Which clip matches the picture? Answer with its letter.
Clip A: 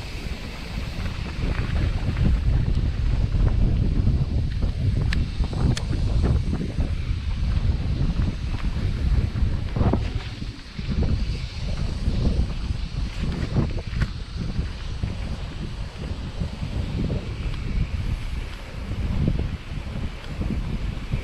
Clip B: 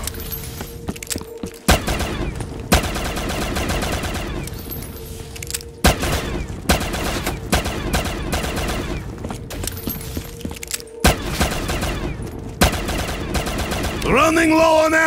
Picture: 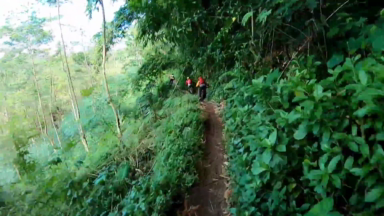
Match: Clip A